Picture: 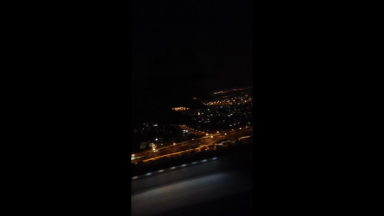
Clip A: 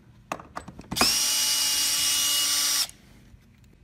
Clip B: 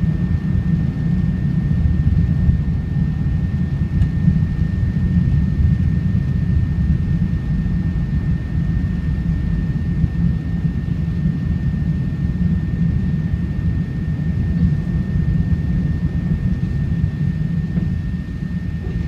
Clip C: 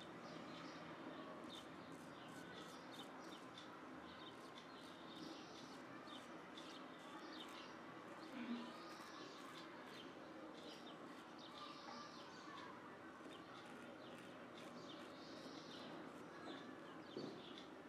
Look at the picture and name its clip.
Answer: B